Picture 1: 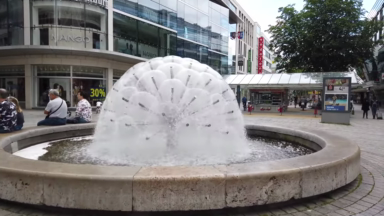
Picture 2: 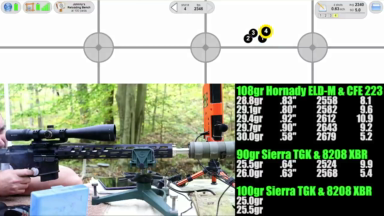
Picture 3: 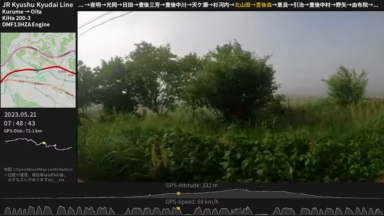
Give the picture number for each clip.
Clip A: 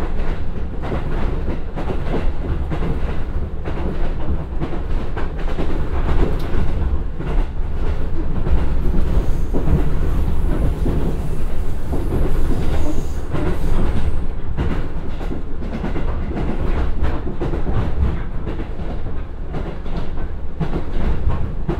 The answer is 3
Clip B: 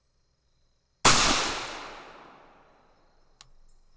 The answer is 2